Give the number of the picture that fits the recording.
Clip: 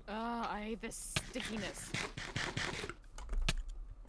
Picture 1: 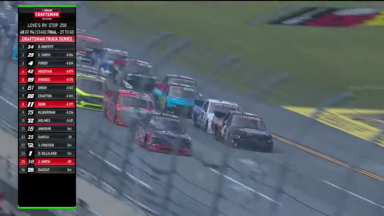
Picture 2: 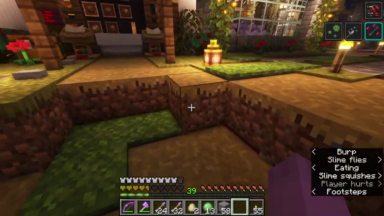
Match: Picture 2